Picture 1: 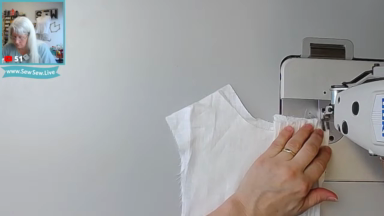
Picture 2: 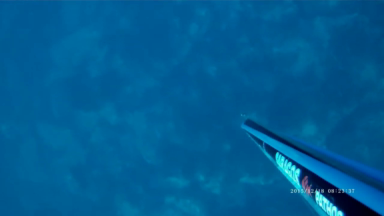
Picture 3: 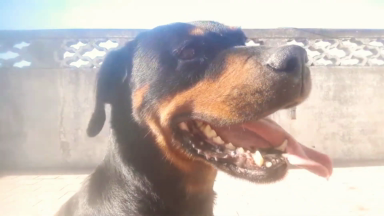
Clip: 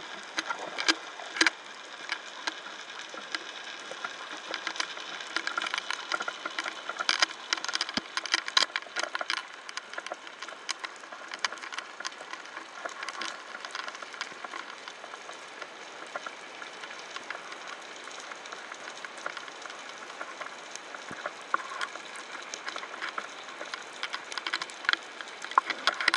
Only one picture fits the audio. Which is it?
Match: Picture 2